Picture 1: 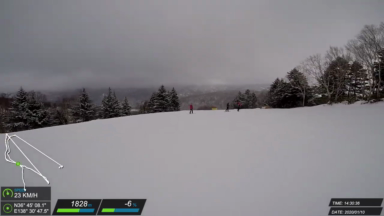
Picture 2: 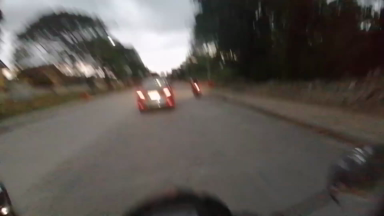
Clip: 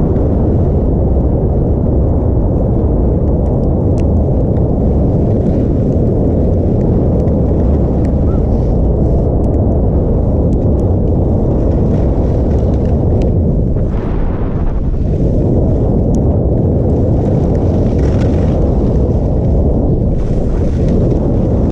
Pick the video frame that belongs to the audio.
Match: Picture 1